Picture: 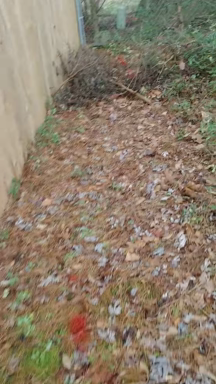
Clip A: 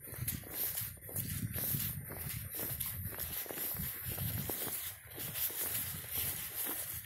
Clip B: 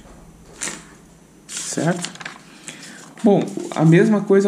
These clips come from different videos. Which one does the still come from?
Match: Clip A